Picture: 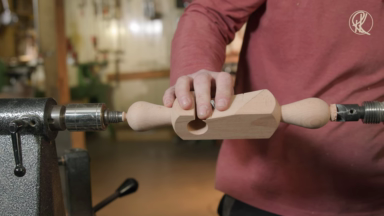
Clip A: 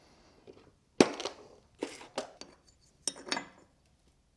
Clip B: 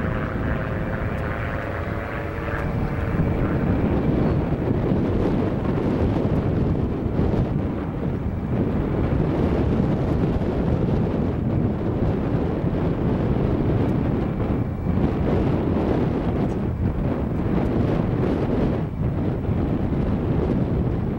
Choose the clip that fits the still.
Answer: A